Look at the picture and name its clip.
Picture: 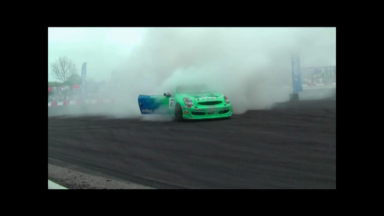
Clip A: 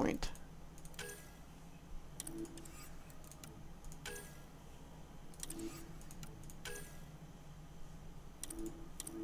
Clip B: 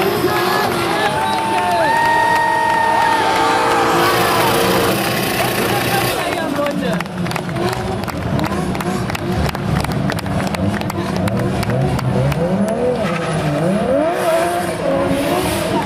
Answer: B